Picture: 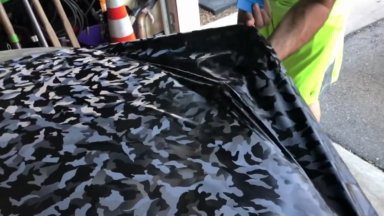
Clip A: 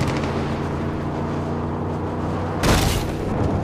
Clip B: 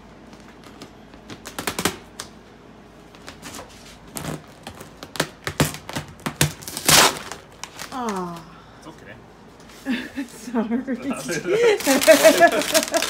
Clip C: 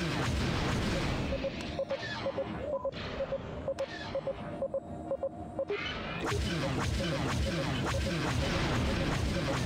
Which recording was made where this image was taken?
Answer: B